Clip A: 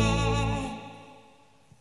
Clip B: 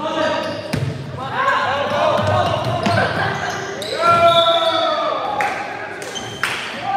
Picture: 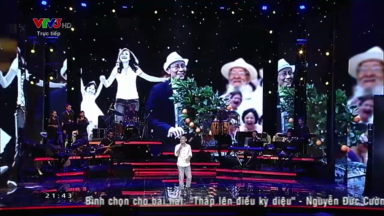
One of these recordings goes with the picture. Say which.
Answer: A